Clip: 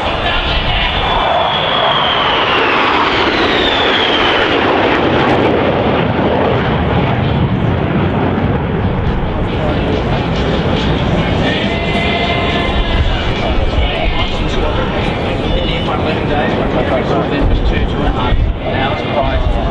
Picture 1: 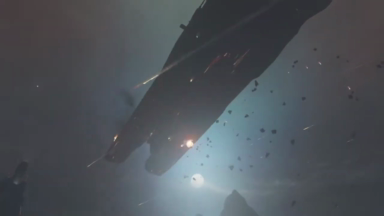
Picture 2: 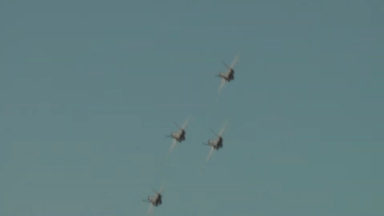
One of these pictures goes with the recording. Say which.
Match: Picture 2